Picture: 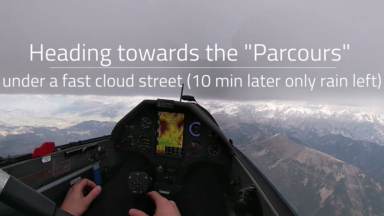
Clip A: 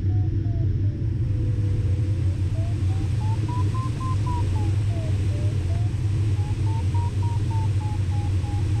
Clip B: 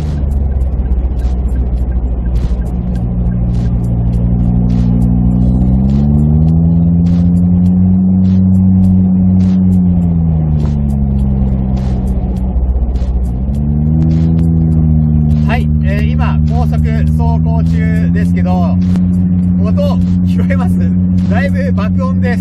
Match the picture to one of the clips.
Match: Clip A